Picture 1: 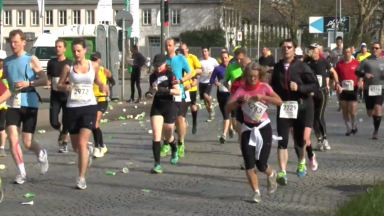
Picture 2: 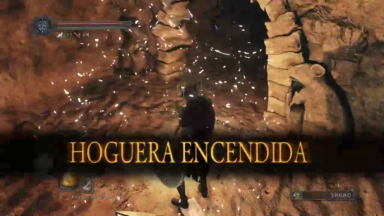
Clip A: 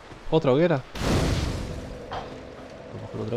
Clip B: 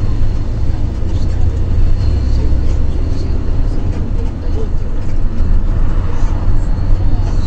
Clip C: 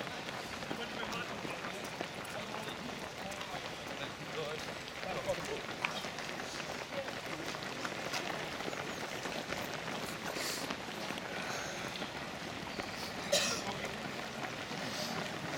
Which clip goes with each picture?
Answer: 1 C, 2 A